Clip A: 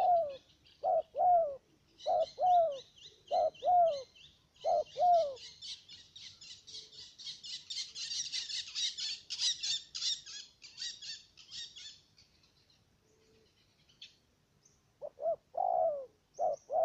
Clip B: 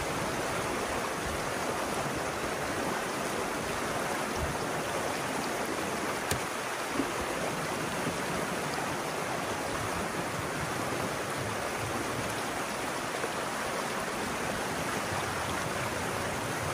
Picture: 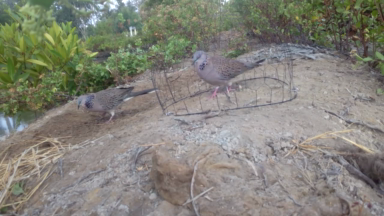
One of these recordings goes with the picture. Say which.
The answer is A